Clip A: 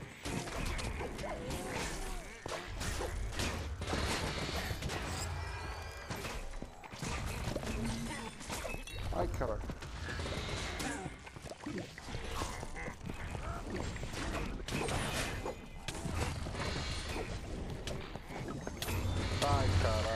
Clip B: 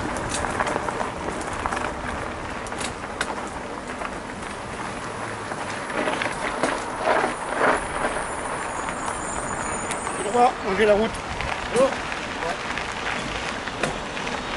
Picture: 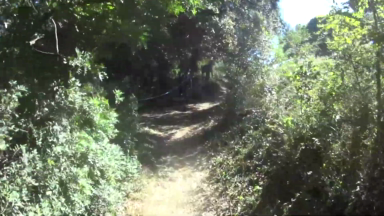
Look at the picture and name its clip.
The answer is B